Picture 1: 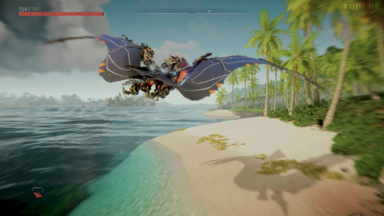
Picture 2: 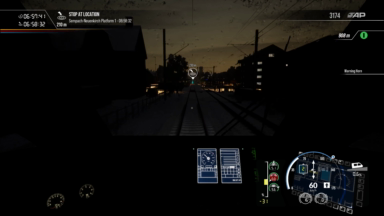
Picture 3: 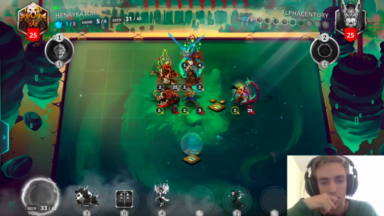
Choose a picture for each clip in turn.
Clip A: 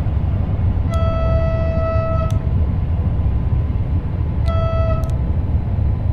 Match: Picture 2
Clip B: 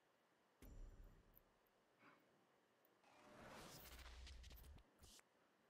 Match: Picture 3